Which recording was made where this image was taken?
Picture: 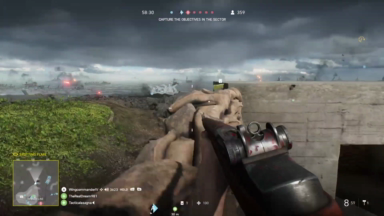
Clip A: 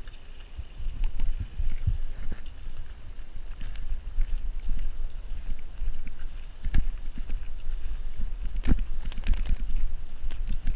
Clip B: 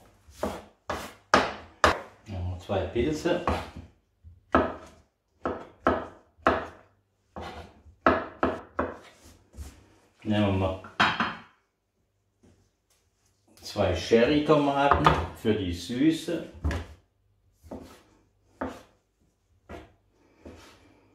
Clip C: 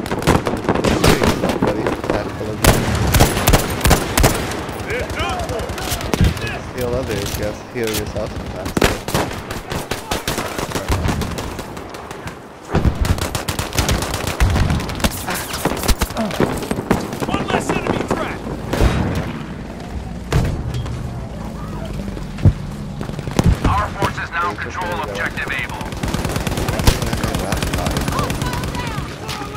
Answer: C